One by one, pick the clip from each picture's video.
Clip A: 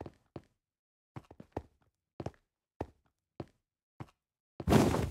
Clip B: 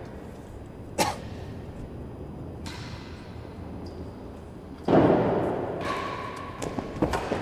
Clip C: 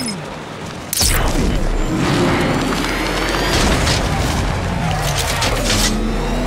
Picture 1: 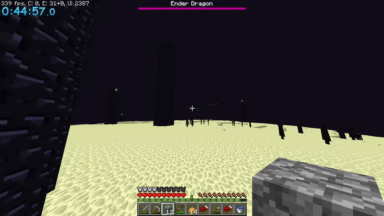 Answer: A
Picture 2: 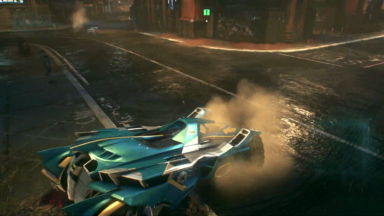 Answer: C